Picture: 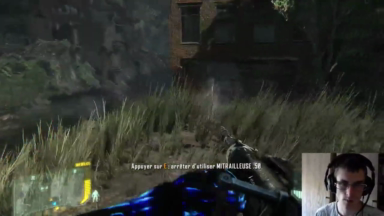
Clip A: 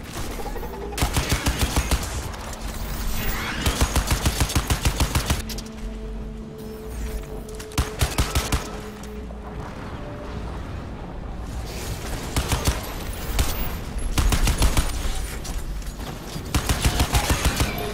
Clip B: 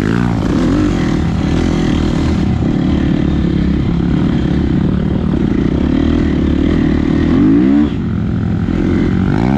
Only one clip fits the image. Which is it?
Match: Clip A